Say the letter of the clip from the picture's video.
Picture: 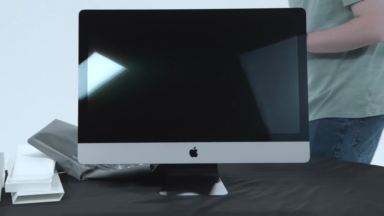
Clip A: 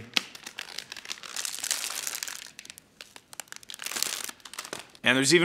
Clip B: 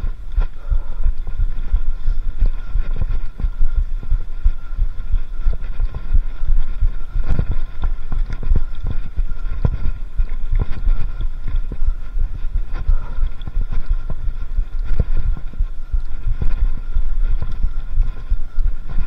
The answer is A